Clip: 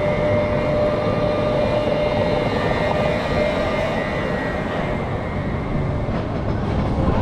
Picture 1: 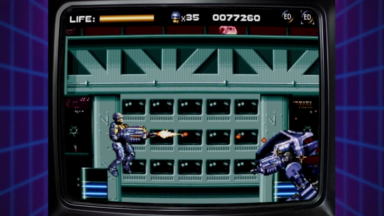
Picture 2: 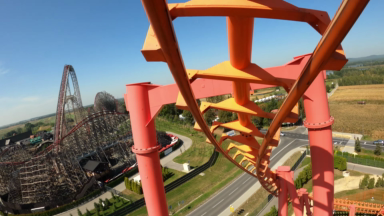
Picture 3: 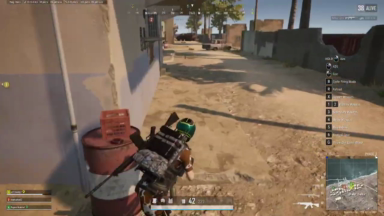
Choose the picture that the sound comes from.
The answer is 2